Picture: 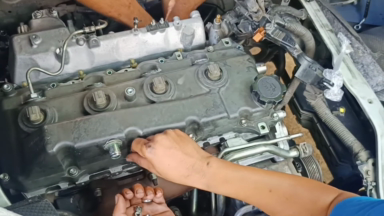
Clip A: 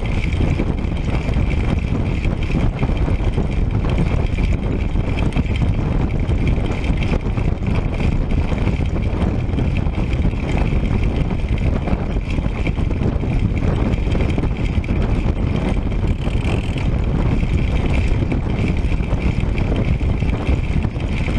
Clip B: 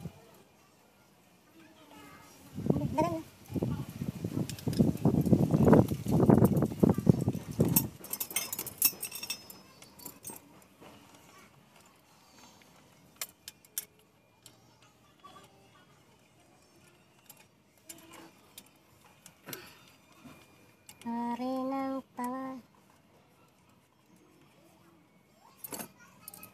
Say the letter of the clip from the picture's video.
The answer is B